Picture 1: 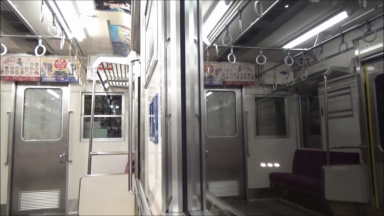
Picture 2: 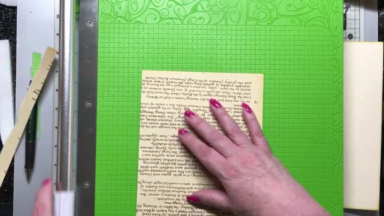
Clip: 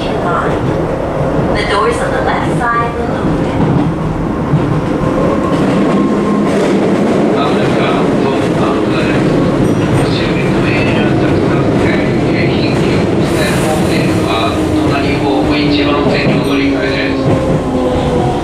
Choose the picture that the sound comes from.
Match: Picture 1